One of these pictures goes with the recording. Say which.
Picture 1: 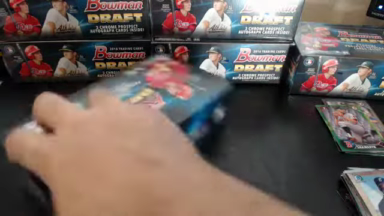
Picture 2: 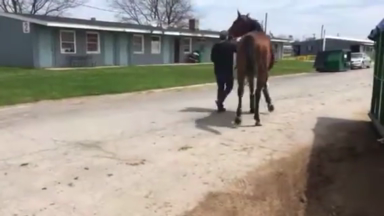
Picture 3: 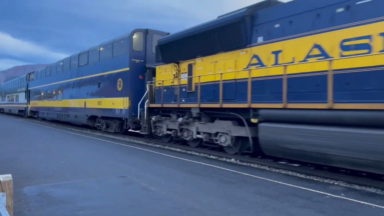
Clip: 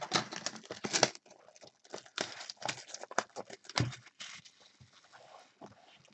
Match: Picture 1